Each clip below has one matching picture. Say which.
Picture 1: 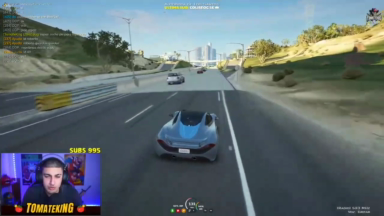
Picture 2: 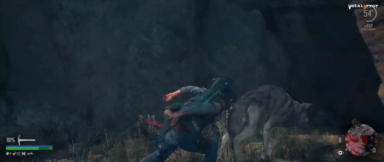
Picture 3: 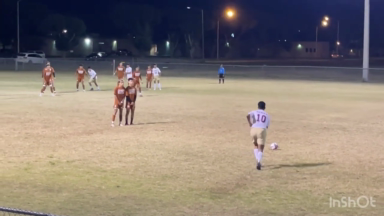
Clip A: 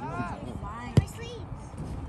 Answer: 3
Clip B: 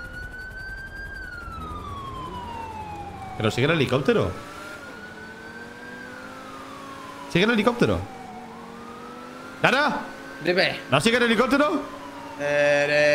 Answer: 1